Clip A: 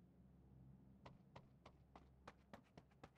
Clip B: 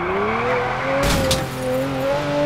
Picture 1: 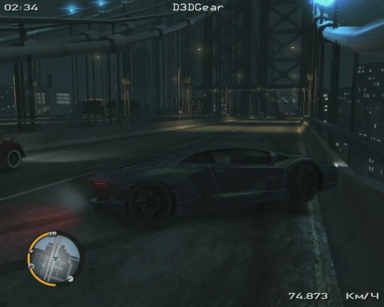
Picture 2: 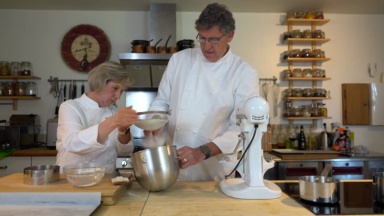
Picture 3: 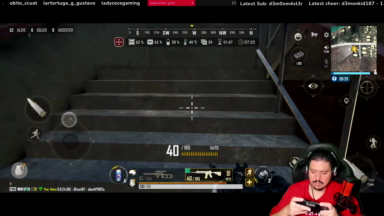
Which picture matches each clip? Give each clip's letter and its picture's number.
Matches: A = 3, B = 1